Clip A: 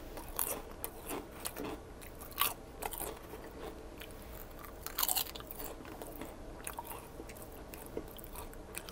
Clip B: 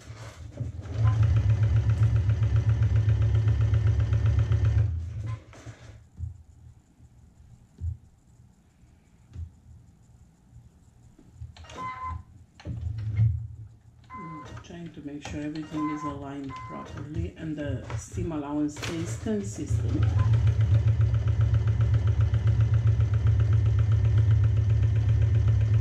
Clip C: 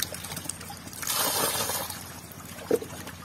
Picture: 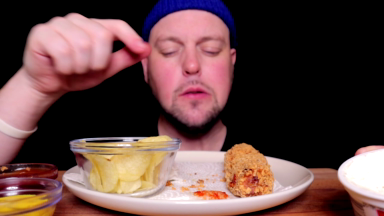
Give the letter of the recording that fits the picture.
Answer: A